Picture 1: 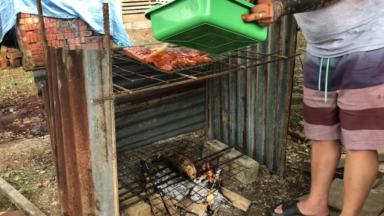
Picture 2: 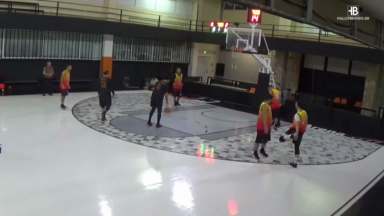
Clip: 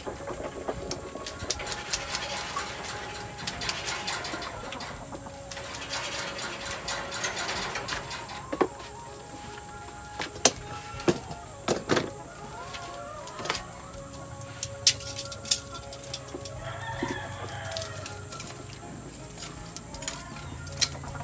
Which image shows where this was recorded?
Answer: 1